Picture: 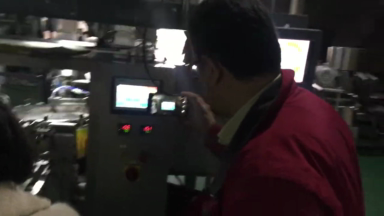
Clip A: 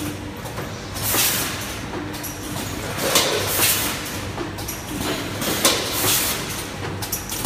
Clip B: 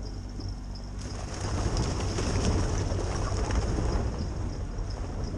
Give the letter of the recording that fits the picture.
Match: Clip A